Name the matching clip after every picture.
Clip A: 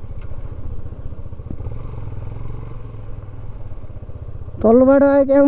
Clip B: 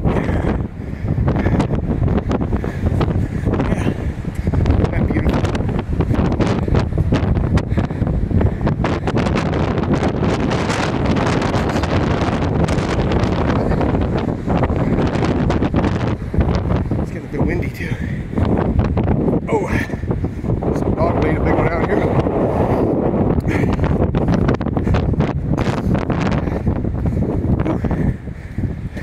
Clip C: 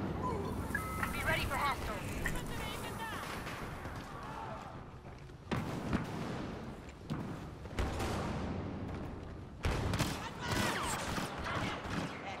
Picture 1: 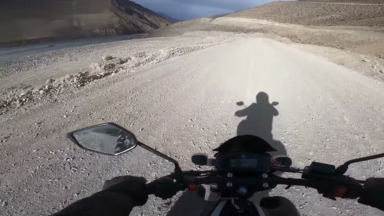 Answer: A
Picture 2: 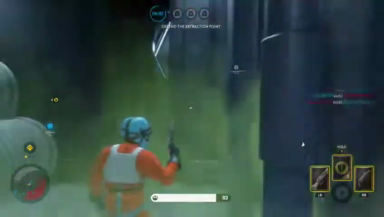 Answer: C